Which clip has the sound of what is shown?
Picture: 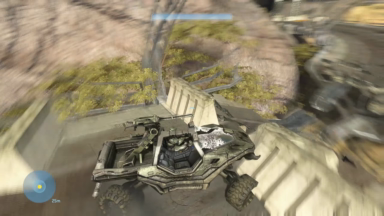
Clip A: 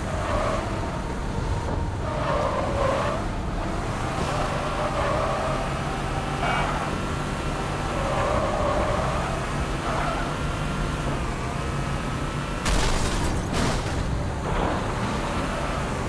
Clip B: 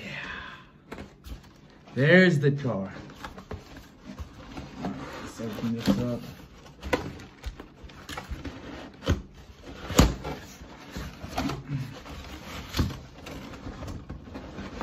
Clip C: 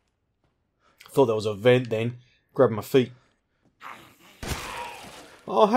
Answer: A